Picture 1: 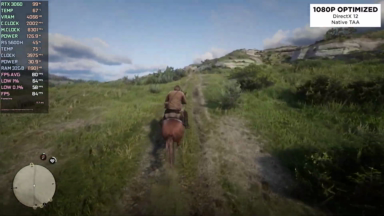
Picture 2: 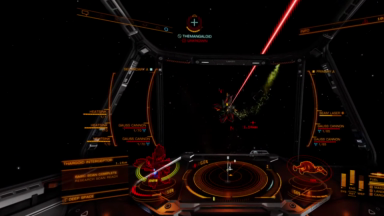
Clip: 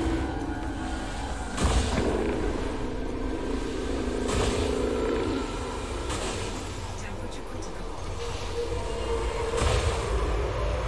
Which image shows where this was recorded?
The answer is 2